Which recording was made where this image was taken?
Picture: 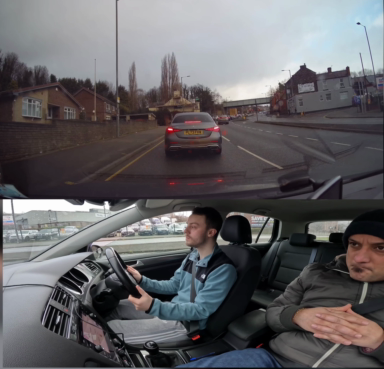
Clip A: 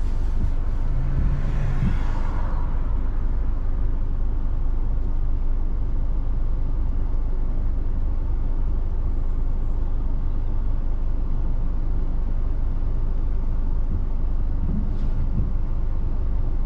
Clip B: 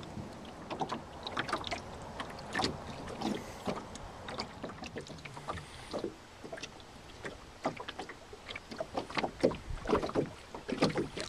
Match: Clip A